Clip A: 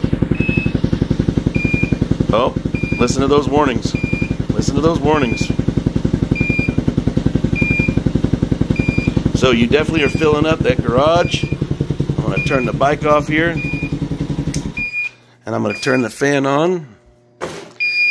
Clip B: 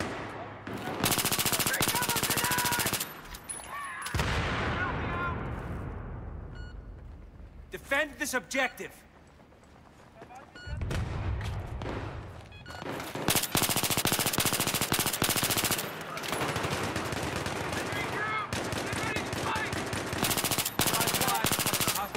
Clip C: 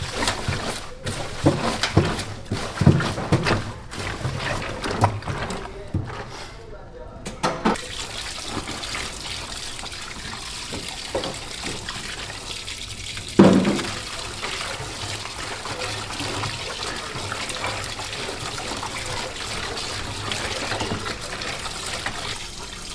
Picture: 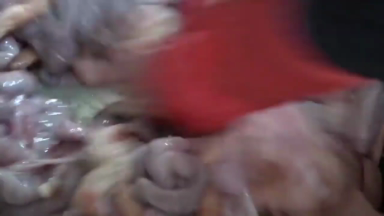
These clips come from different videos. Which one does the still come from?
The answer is C